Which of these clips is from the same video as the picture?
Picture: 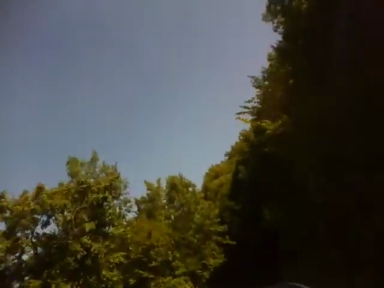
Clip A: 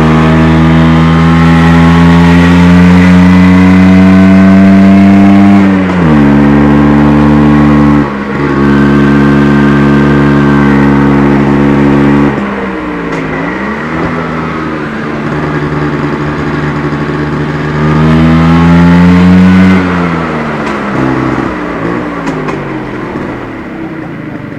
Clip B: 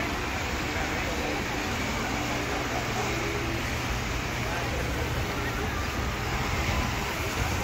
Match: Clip A